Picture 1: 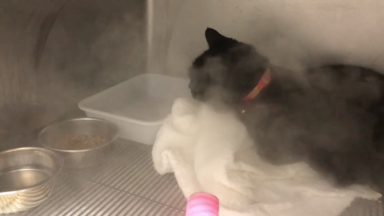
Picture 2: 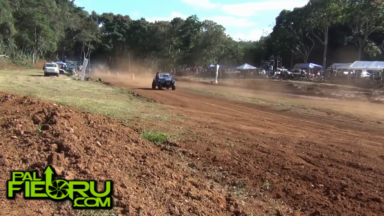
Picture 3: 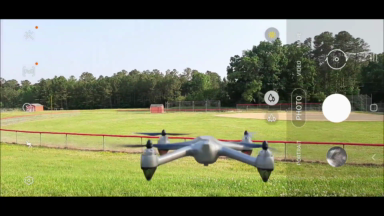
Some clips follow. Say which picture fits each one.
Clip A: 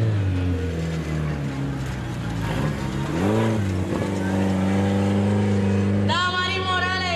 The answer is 2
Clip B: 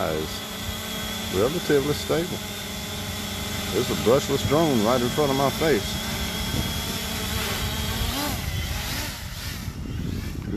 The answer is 3